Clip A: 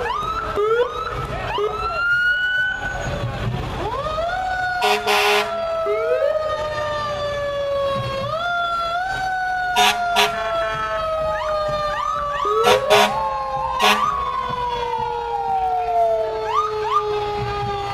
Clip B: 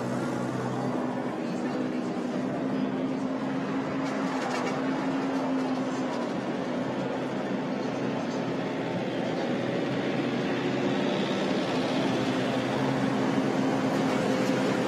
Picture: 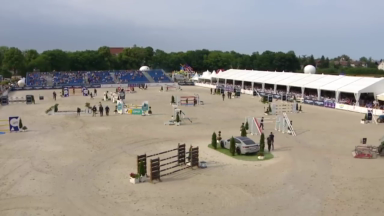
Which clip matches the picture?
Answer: B